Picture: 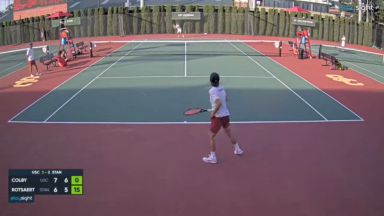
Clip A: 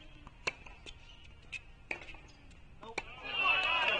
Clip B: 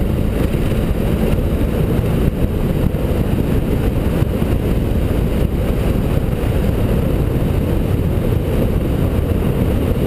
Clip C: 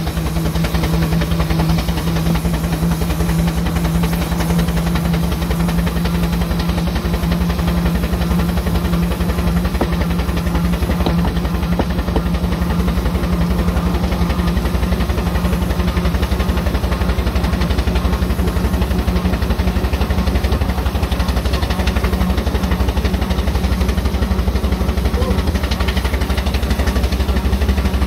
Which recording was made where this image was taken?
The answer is A